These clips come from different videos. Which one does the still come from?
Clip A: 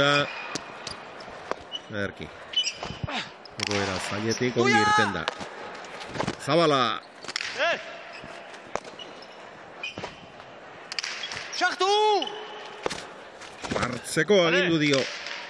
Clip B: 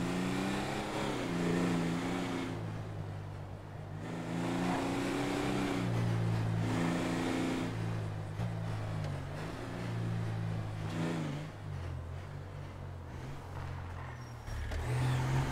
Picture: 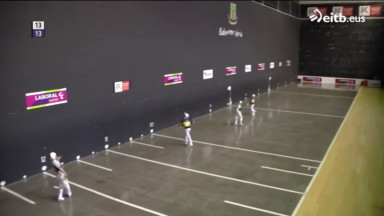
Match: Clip A